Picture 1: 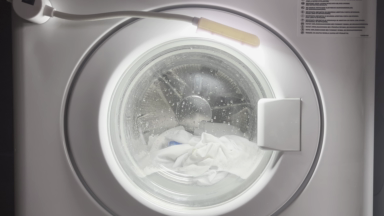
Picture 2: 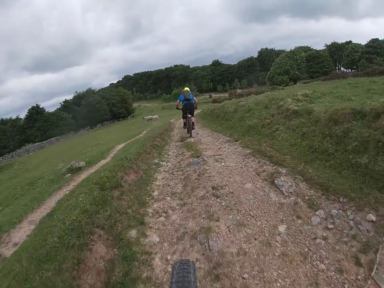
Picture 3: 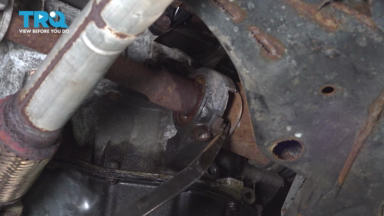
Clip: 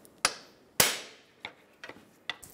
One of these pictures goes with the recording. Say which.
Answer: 3